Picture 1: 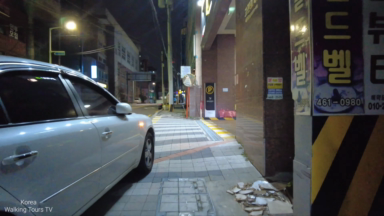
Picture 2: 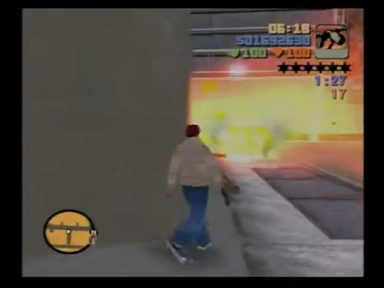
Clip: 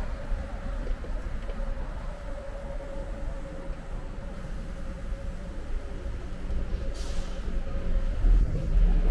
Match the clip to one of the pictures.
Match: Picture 1